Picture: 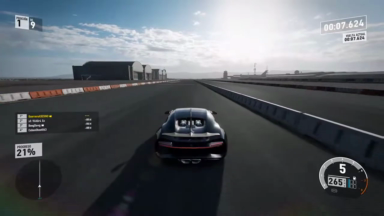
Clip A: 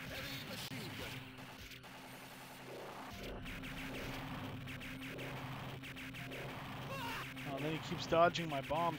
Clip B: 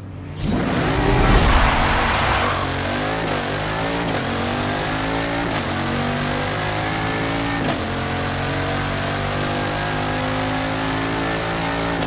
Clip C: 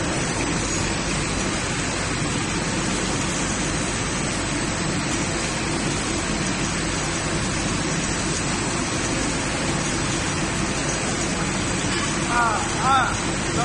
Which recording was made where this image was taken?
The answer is B